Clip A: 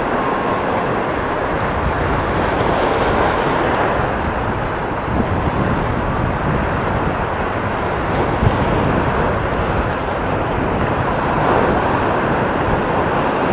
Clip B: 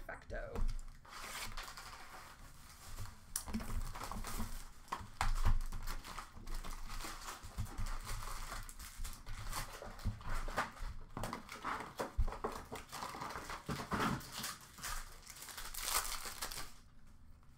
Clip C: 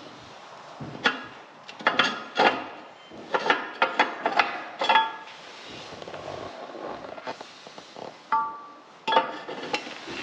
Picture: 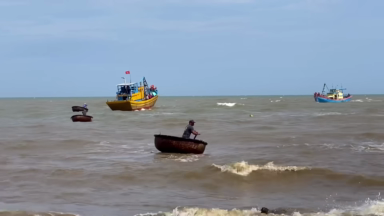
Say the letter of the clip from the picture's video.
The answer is A